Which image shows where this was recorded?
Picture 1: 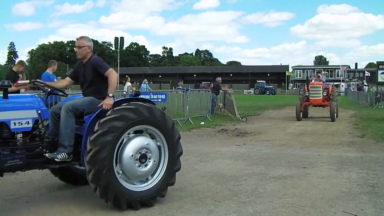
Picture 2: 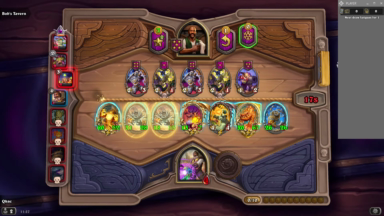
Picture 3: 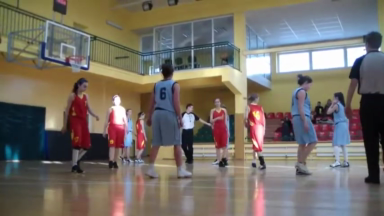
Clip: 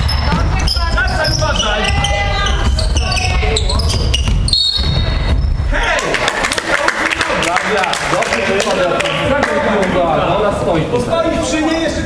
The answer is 3